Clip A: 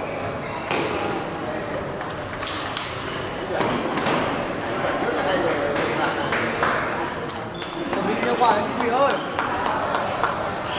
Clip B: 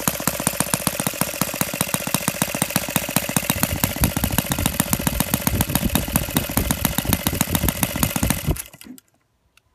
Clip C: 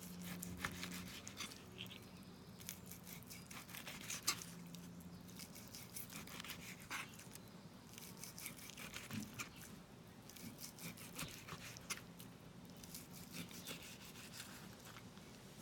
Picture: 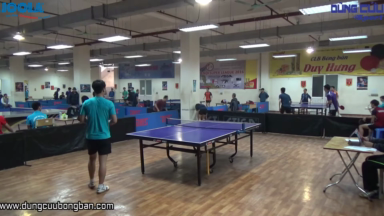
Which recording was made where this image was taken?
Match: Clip A